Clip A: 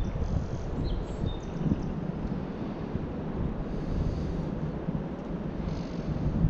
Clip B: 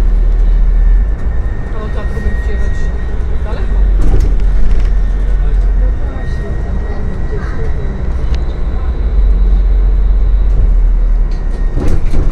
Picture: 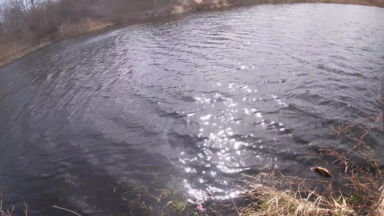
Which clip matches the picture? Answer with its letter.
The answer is A